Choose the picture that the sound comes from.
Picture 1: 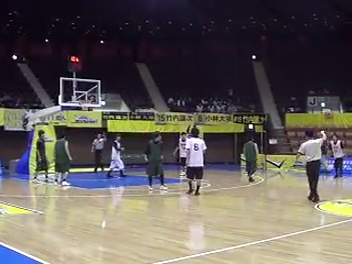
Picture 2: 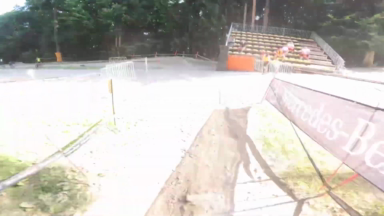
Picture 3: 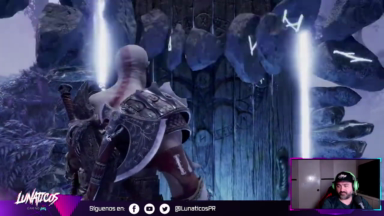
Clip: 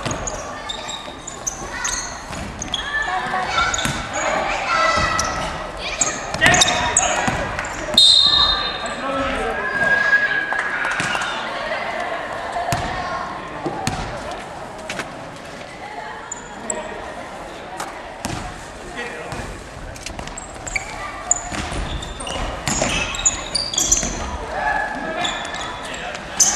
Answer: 1